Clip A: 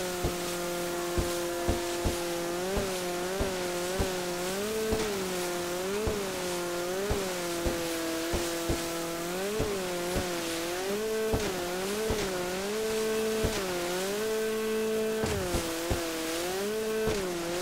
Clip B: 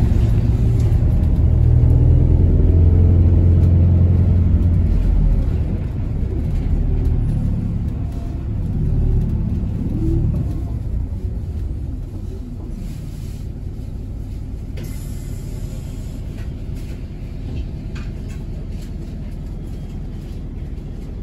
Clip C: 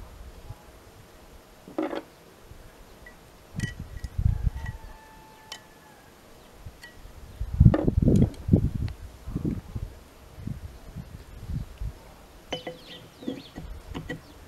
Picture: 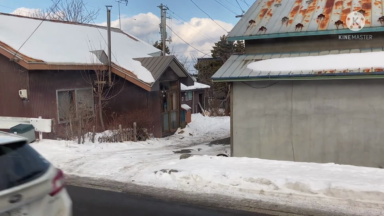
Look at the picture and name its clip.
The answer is B